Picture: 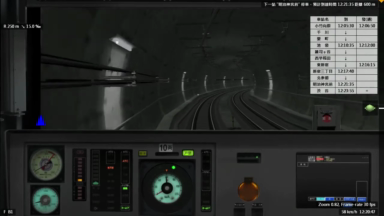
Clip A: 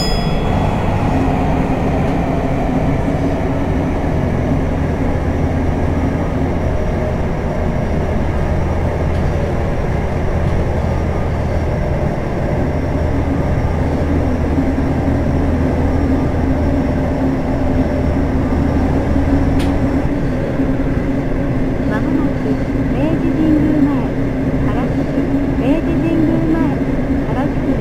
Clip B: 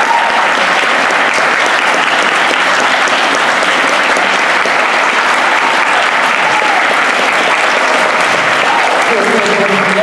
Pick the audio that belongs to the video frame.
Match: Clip A